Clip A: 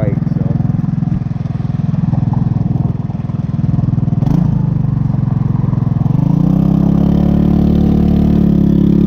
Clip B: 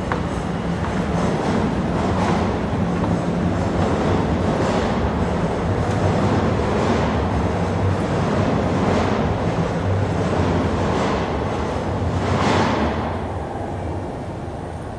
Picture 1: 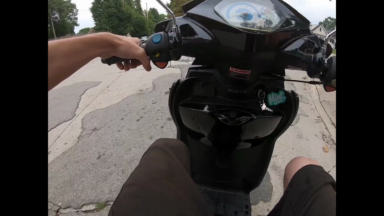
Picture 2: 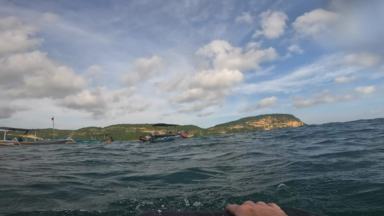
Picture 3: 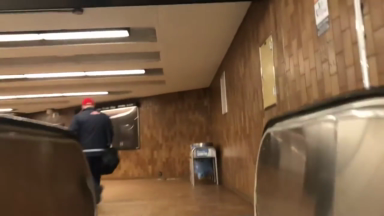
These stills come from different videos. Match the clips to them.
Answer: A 1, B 3